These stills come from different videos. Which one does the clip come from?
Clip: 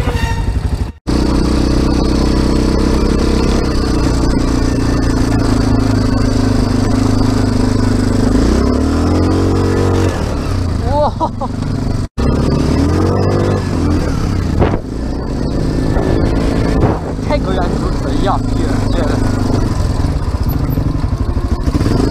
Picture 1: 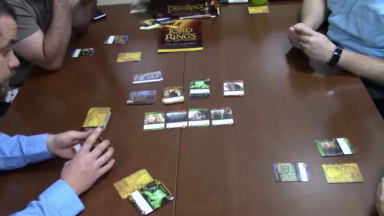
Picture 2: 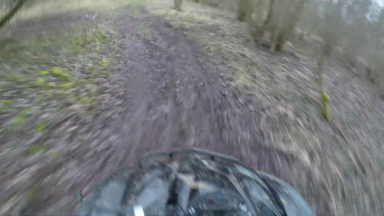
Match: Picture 2